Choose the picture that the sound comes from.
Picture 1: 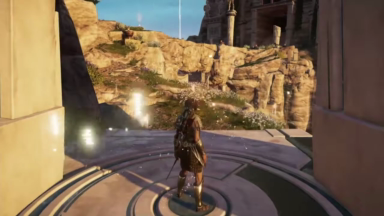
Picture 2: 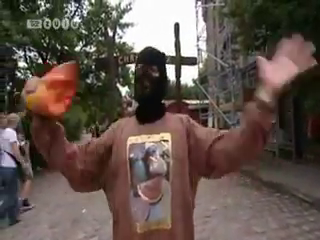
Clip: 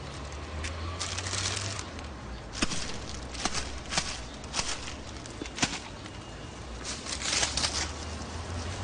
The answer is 2